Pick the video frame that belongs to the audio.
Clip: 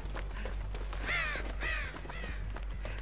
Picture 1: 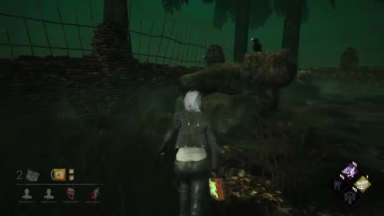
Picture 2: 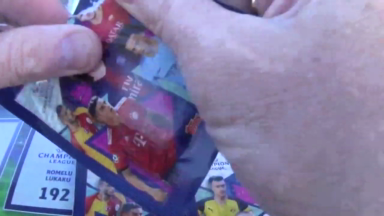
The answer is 1